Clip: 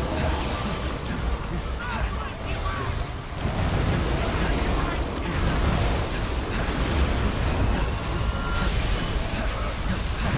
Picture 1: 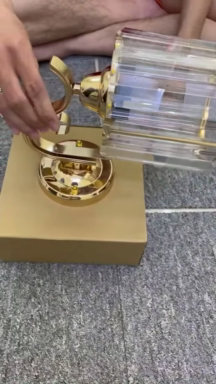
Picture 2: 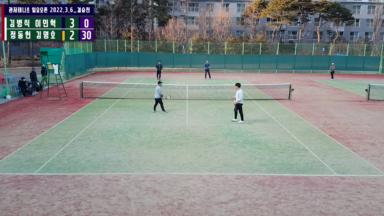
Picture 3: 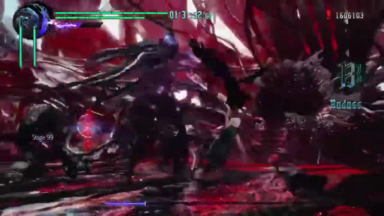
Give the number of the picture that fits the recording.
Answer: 3